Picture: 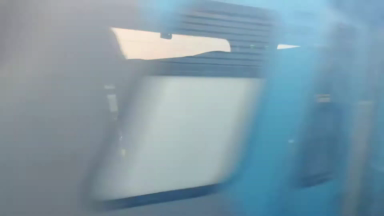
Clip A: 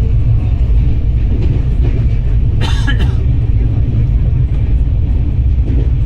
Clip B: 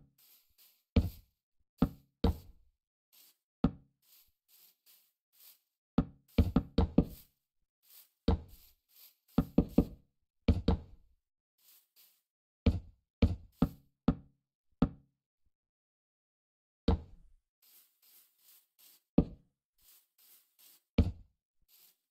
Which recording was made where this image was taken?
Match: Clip A